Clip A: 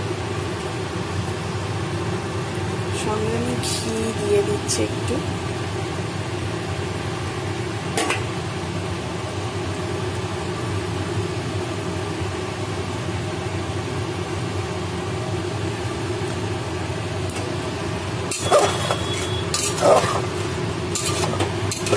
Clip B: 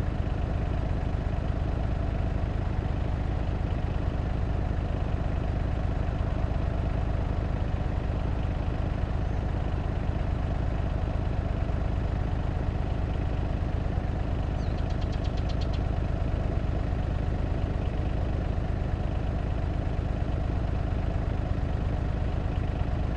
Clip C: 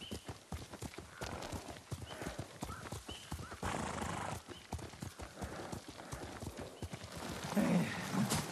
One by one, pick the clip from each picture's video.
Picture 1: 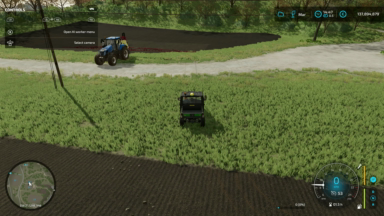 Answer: B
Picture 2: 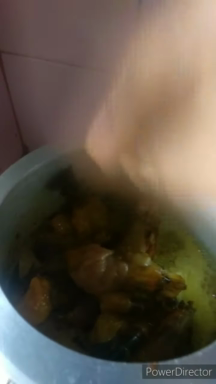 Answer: A